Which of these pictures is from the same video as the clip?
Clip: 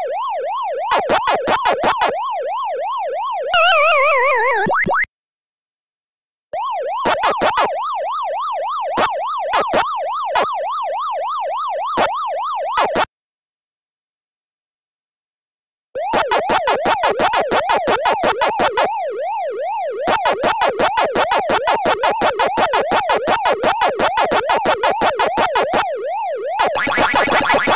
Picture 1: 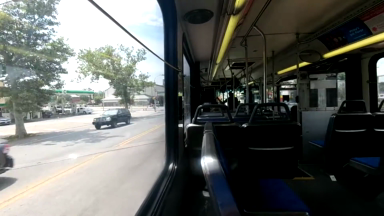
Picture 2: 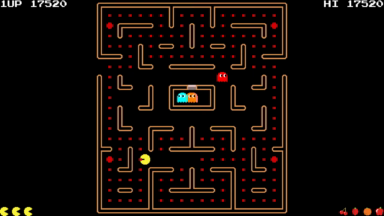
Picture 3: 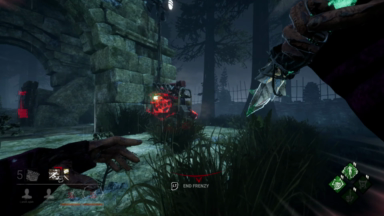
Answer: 2